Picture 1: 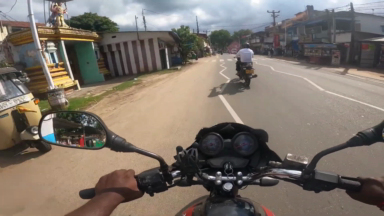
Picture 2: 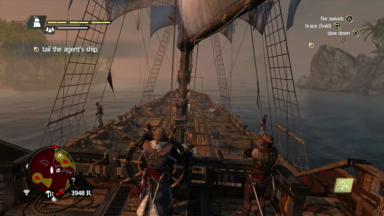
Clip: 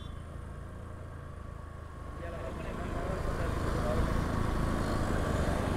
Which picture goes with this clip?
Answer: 1